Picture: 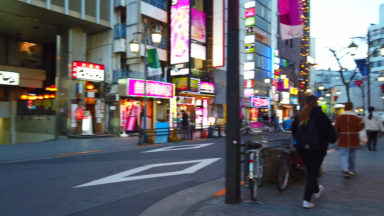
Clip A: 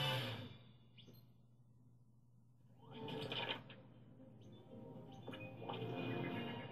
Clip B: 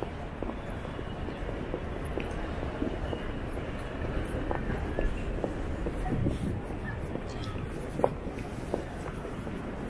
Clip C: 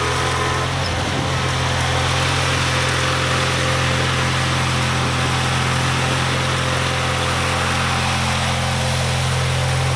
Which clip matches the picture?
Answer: B